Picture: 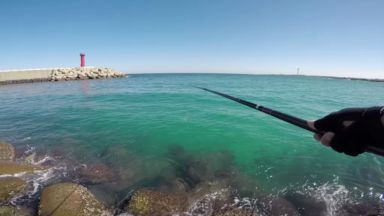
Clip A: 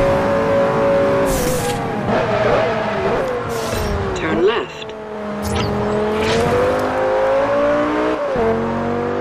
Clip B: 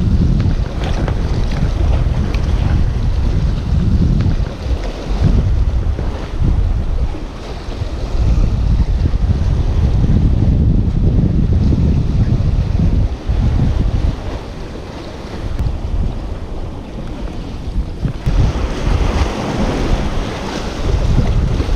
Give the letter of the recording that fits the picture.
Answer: B